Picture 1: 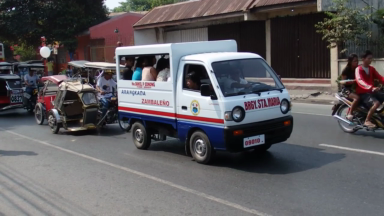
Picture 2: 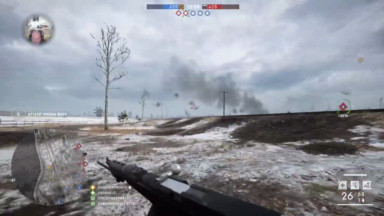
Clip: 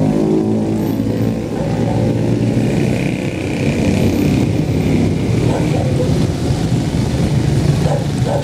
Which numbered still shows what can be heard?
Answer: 1